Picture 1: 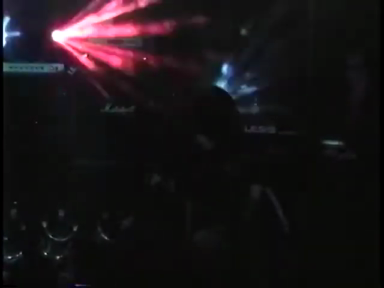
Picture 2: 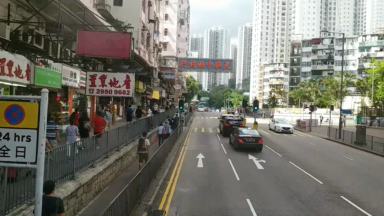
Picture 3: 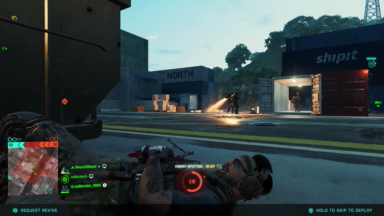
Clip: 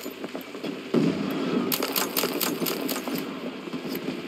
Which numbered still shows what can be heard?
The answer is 3